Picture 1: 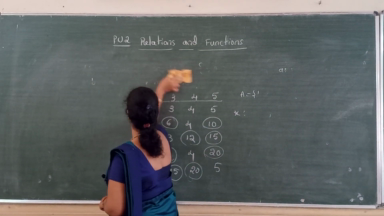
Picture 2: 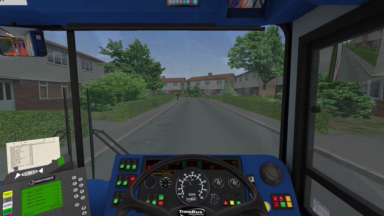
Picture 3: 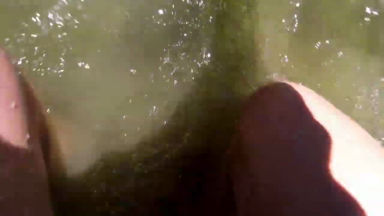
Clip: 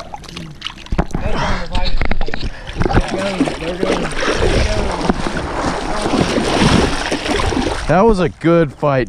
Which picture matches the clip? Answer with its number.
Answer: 3